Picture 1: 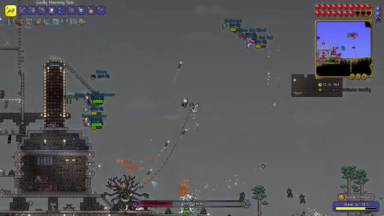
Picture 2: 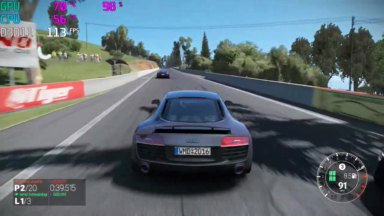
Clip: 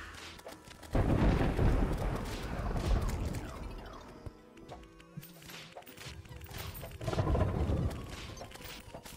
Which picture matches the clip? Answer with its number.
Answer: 1